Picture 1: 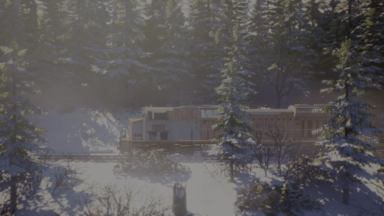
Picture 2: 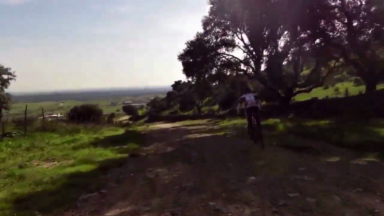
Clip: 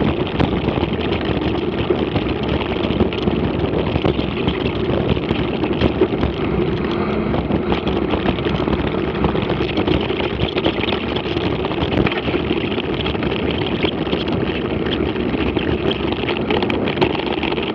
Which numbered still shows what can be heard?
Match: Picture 2